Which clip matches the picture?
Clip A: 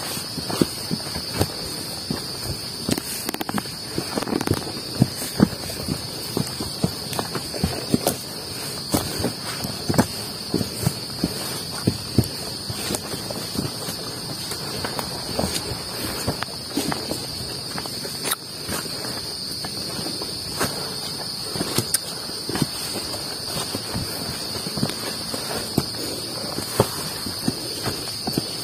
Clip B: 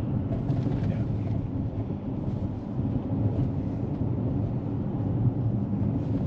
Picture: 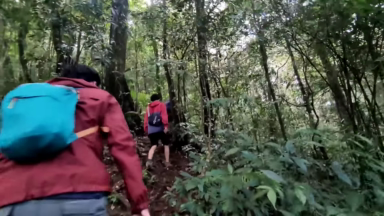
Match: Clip A